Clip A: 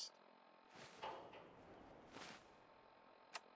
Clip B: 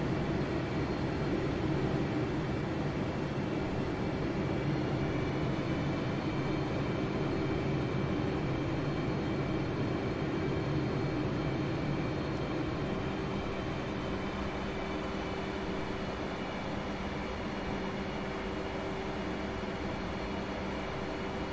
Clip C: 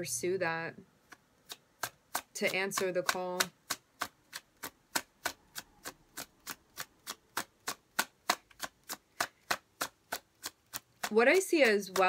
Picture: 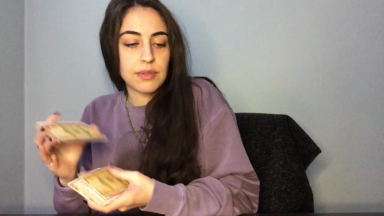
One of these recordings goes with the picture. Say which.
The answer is C